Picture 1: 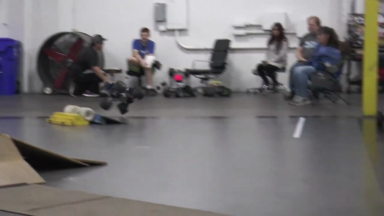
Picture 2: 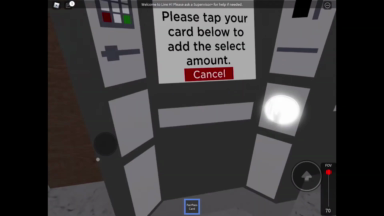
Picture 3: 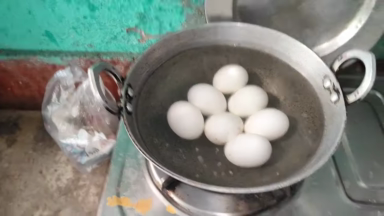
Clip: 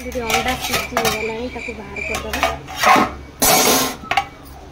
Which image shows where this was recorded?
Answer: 3